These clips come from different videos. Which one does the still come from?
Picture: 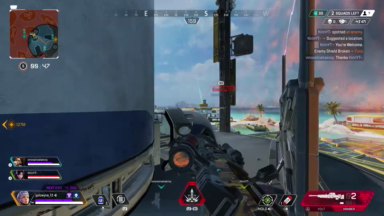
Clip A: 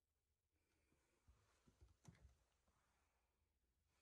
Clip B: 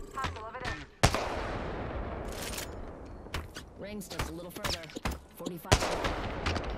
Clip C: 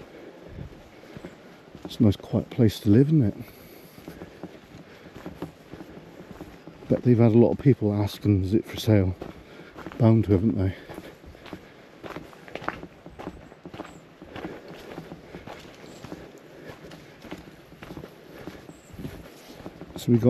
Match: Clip B